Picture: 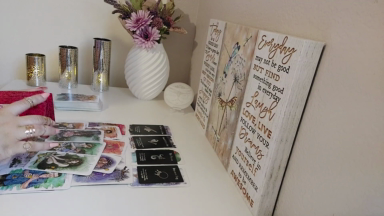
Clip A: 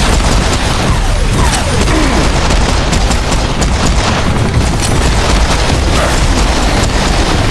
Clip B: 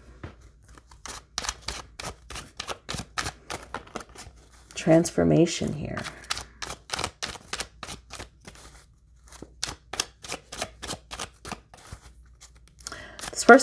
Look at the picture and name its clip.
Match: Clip B